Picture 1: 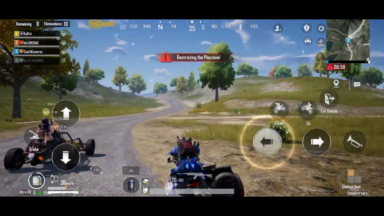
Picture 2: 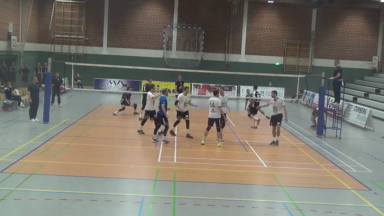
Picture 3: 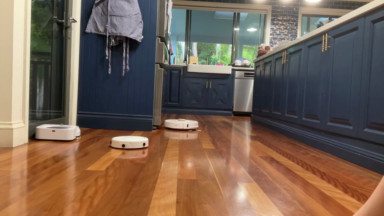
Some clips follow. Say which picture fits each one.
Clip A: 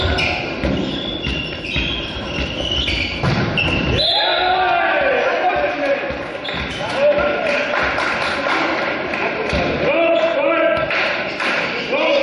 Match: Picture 2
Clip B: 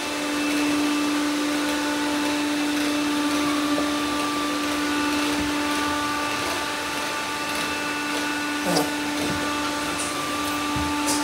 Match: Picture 3